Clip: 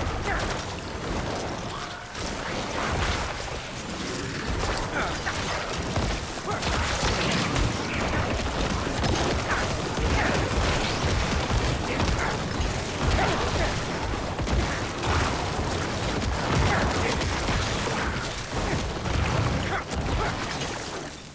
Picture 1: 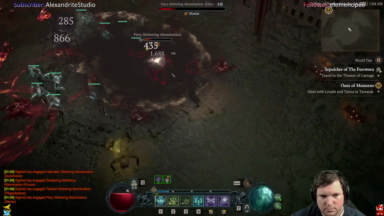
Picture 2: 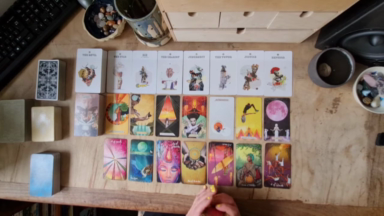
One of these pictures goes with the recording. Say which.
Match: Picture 1